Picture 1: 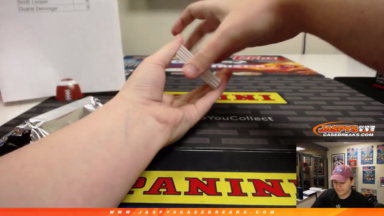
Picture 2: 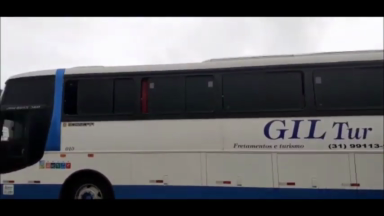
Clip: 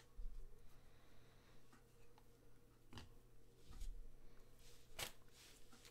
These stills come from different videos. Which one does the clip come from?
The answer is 1